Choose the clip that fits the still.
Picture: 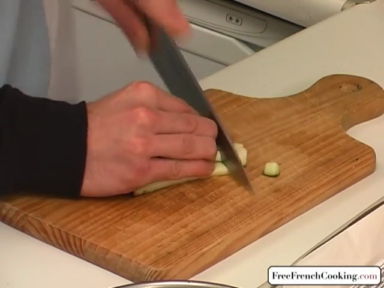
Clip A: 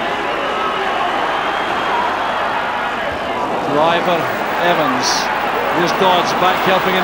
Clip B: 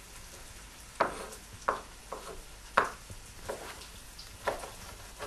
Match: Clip B